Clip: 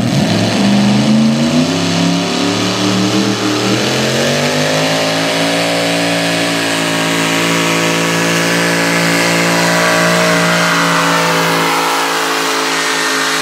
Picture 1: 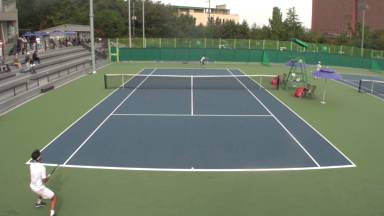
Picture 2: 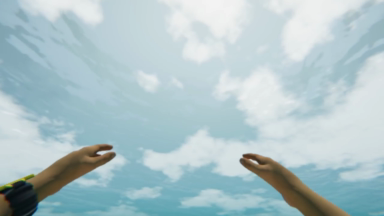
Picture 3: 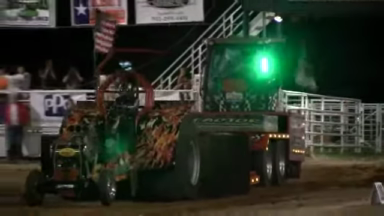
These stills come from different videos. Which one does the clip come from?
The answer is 3